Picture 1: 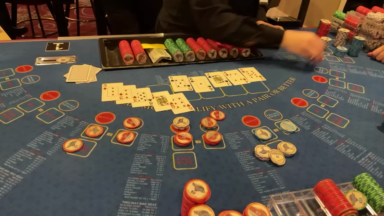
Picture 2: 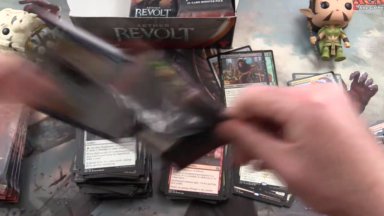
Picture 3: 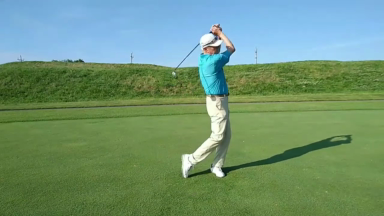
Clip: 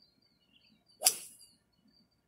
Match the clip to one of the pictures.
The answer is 3